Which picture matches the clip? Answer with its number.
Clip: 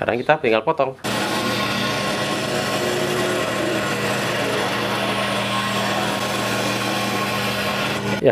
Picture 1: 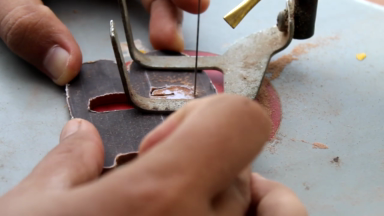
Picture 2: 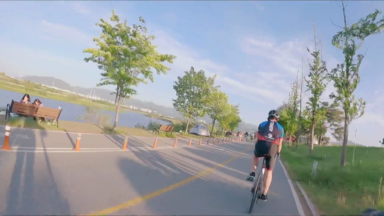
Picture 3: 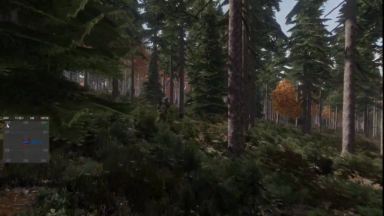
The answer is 1